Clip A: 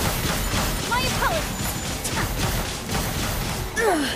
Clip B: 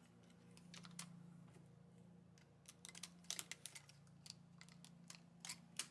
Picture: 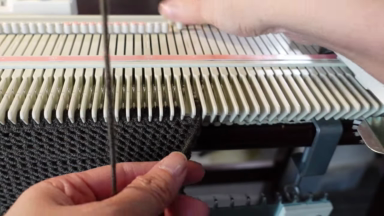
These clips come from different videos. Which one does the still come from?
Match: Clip B